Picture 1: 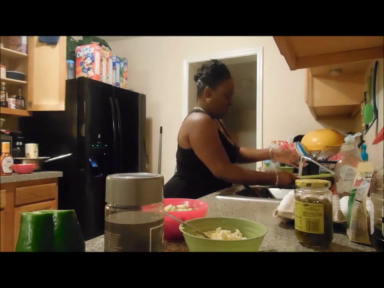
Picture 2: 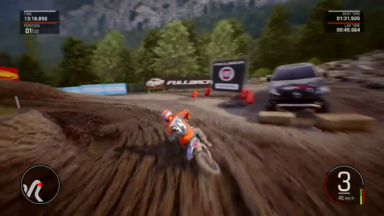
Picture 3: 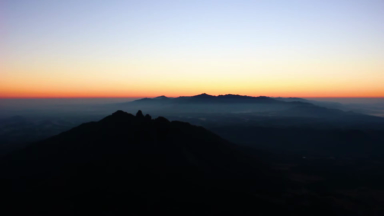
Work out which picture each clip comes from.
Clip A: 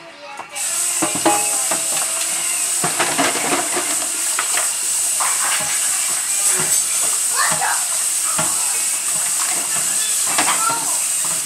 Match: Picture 1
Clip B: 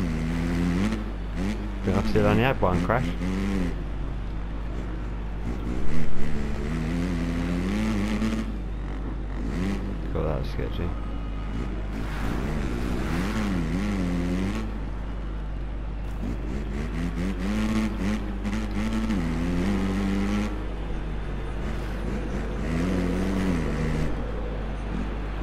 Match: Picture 2